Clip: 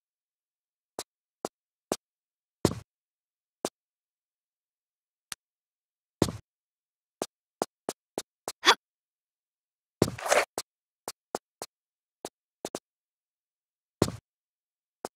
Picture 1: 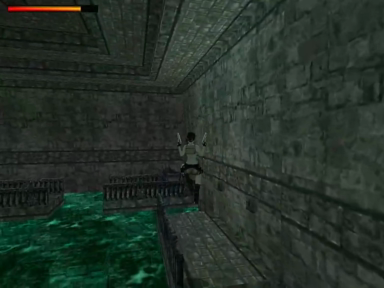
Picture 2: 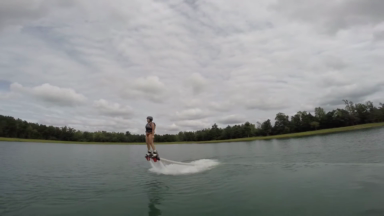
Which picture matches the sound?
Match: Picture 1